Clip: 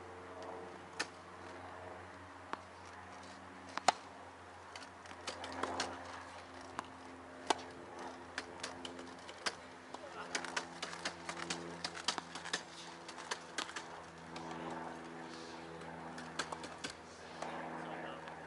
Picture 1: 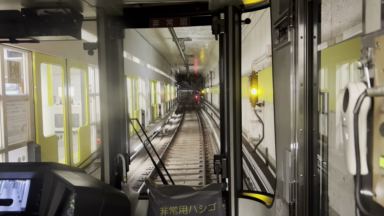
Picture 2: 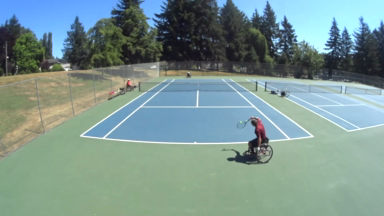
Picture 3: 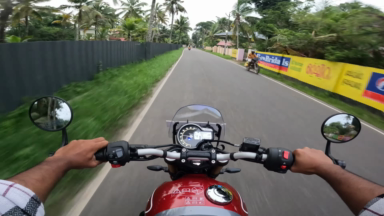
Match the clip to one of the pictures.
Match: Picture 2